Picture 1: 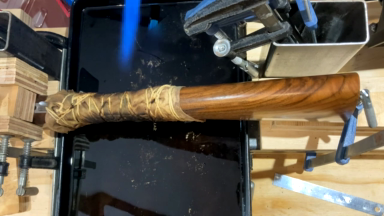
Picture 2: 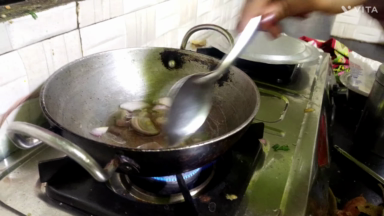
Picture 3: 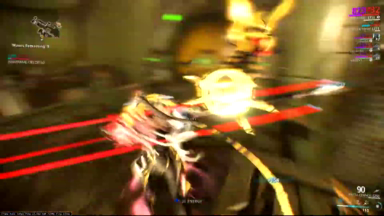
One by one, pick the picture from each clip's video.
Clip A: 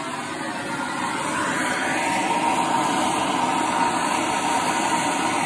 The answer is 1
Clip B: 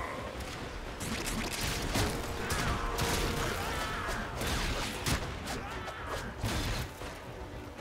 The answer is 3